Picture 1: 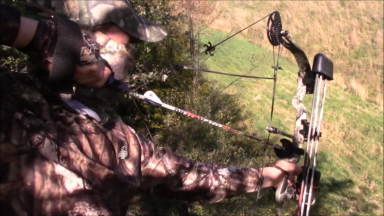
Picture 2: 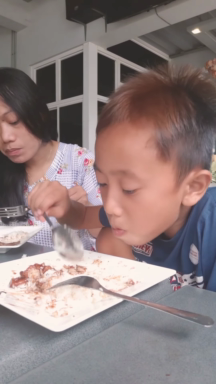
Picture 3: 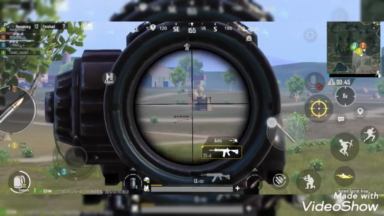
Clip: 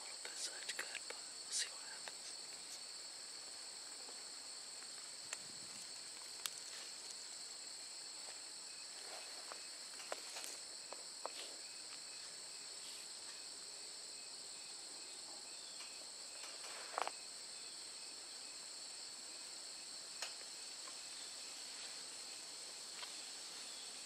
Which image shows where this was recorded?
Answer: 1